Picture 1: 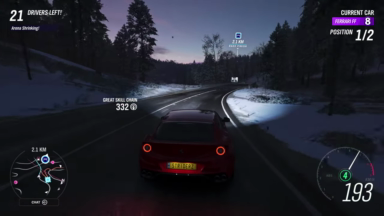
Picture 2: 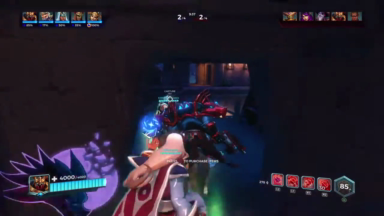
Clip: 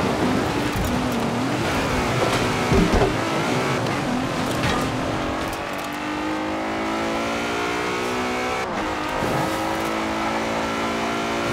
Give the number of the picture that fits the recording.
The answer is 1